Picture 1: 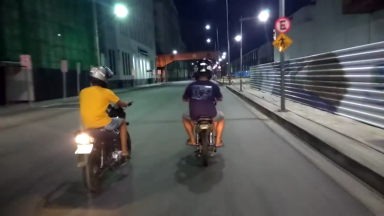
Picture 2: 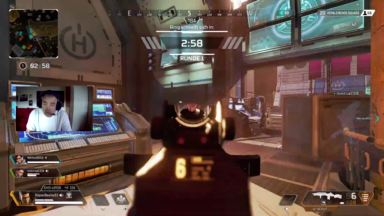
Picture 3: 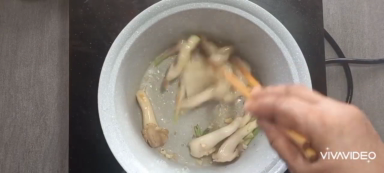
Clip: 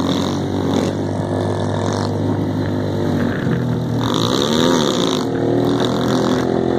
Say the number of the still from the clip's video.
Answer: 1